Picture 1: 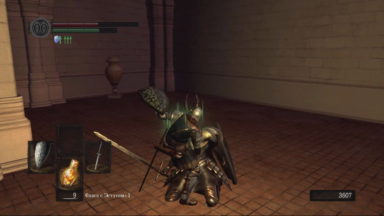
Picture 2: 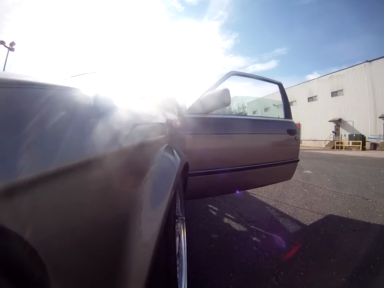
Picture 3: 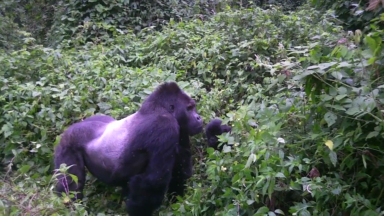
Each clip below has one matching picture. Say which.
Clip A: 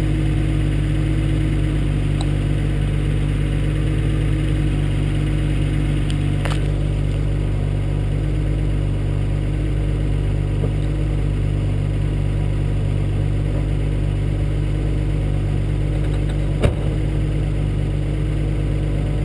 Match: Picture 2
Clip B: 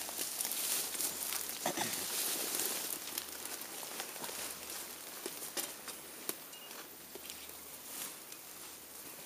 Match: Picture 3